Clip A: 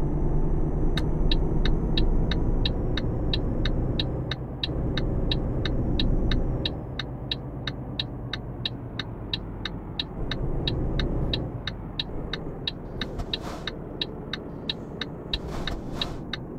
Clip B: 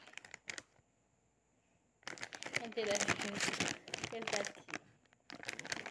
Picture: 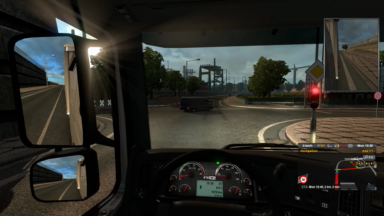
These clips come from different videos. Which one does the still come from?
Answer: A